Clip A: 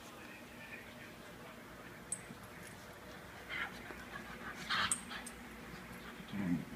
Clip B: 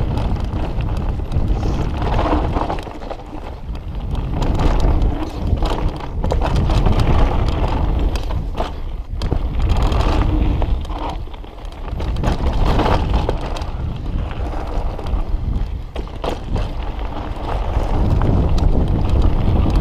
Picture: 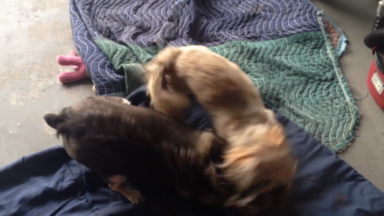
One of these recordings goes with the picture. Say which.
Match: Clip A